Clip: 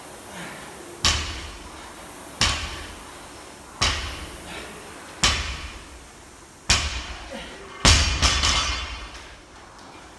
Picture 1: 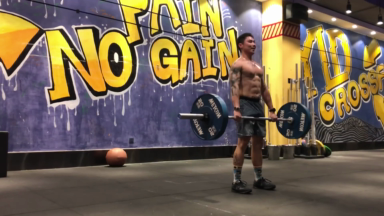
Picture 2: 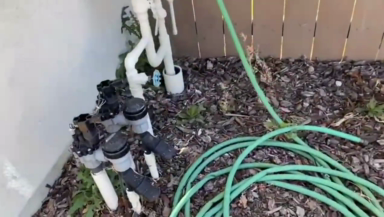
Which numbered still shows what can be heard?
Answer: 1